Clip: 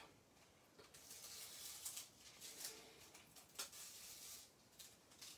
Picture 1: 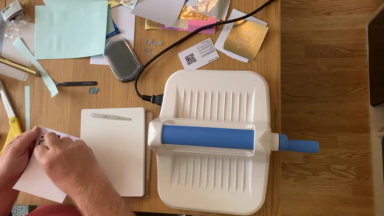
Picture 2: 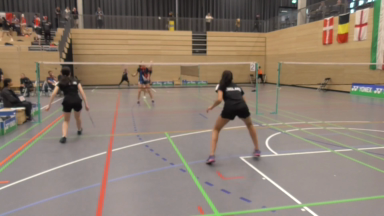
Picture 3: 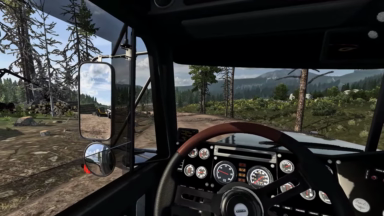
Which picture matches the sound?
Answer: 1